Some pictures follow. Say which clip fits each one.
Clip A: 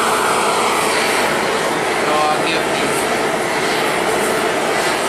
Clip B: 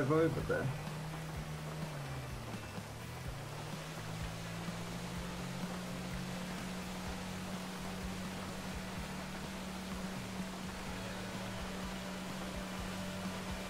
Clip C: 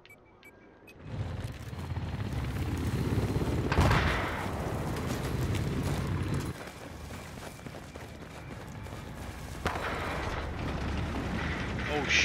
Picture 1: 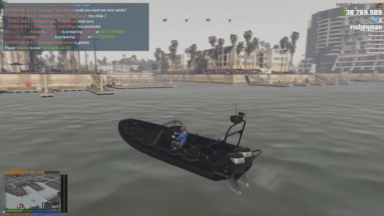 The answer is B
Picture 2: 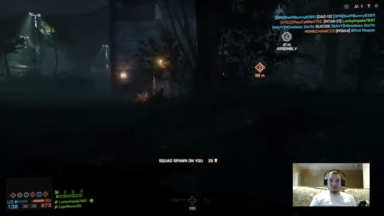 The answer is C